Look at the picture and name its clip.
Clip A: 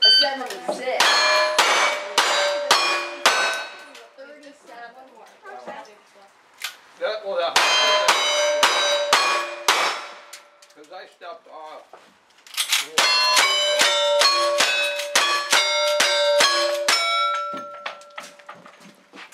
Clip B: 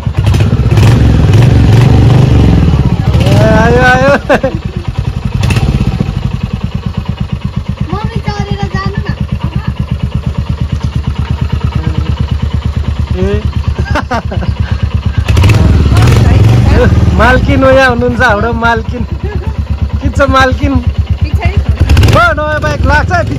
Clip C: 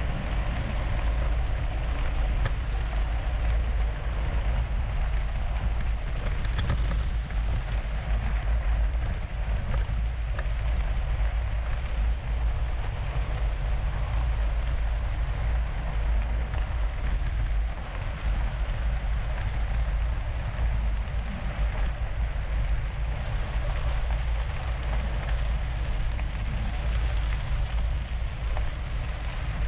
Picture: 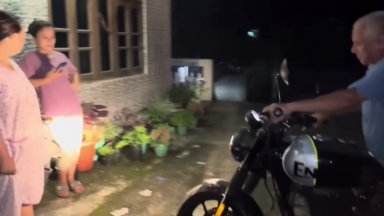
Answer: B